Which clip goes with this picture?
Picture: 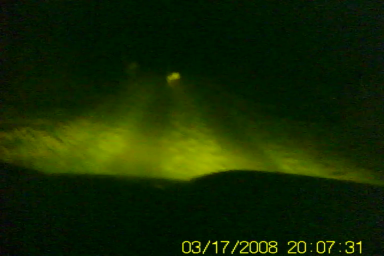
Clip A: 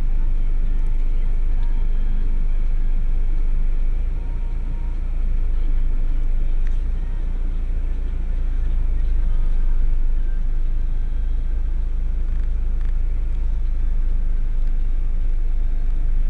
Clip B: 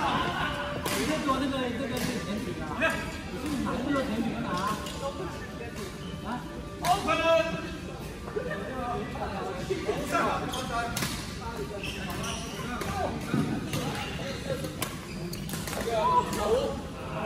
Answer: A